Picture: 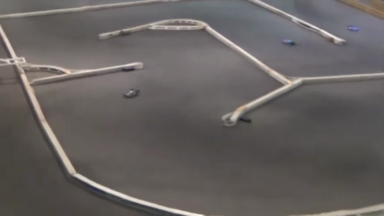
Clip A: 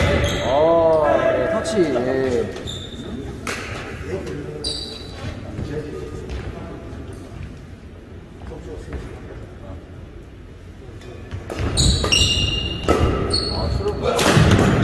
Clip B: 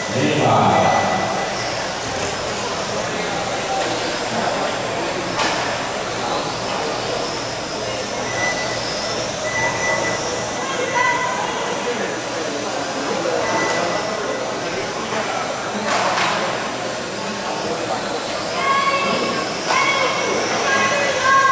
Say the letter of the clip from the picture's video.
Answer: B